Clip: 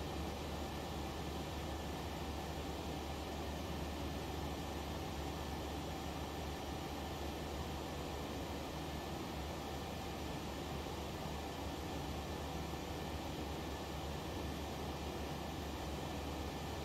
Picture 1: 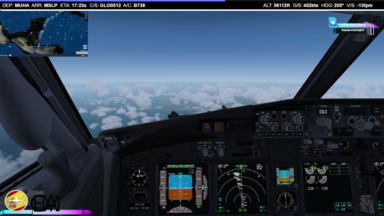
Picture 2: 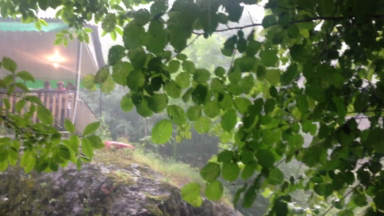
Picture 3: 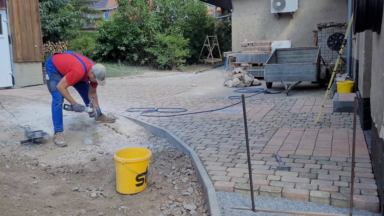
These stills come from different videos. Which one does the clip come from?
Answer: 1